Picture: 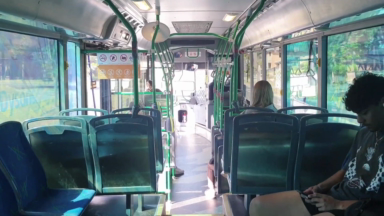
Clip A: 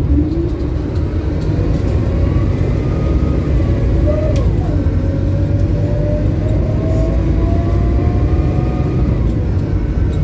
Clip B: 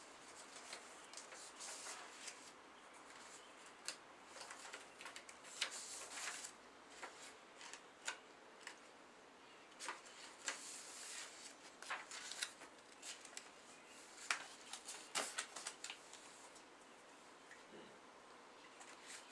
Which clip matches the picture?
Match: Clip A